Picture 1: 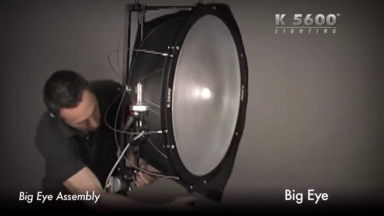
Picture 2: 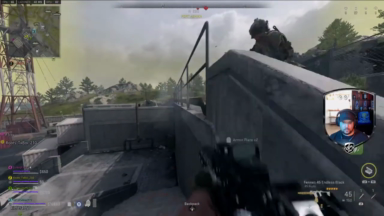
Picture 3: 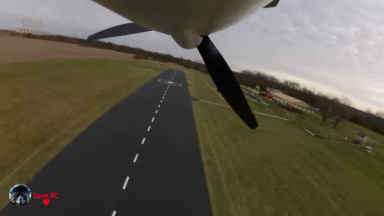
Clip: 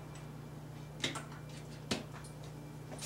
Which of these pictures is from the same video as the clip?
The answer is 1